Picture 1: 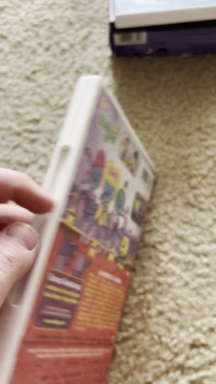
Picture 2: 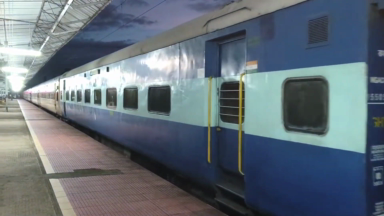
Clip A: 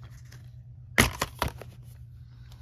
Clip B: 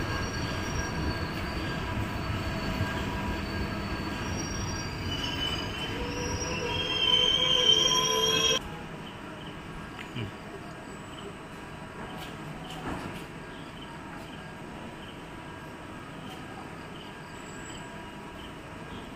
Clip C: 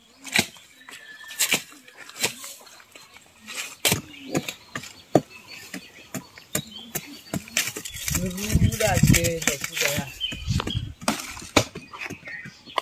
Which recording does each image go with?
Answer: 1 A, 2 B